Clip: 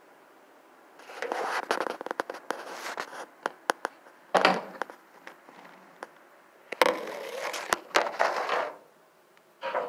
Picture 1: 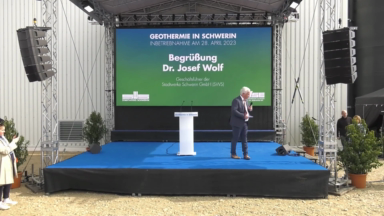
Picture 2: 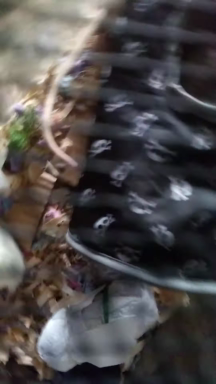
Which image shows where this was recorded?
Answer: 2